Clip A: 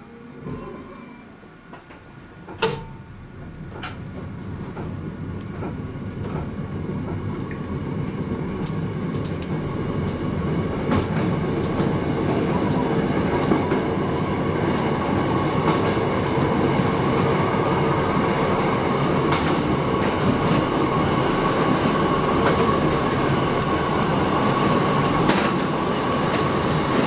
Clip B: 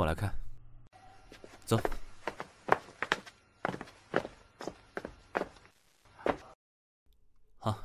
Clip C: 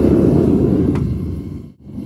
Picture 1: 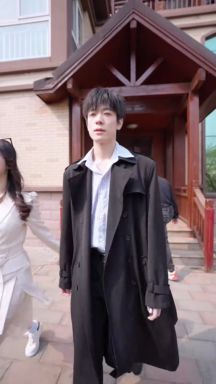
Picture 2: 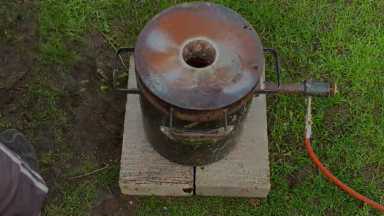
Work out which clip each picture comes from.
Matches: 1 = B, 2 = C